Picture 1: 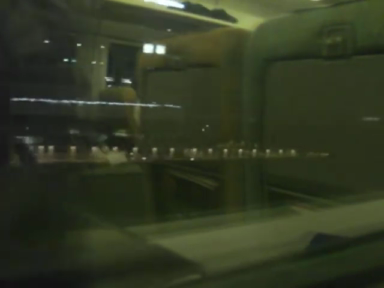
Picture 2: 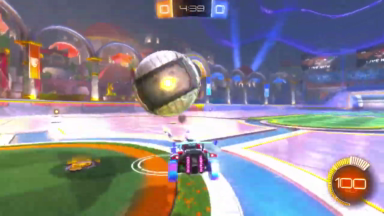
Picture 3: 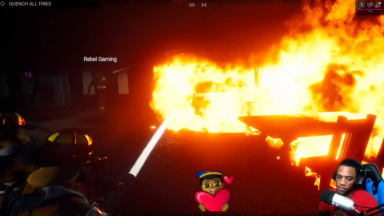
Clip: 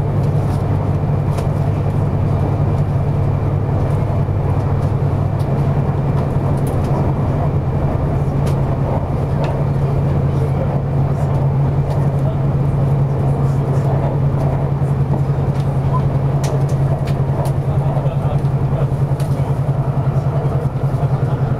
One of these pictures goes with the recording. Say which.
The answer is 1